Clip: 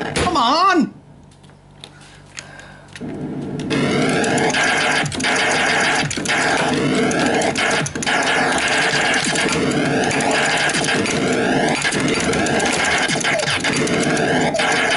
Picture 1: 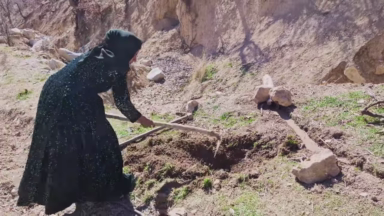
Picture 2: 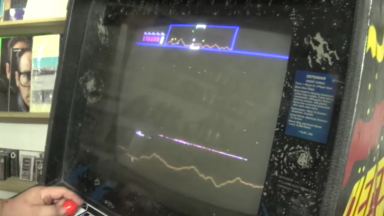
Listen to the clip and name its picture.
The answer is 2